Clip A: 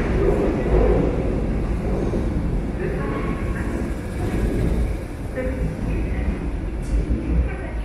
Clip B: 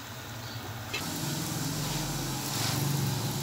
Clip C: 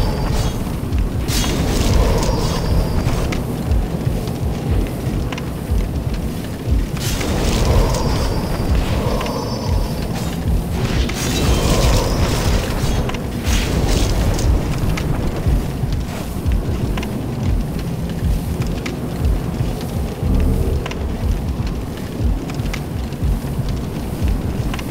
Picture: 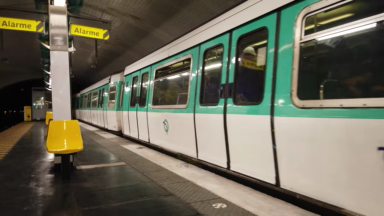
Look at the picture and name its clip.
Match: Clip A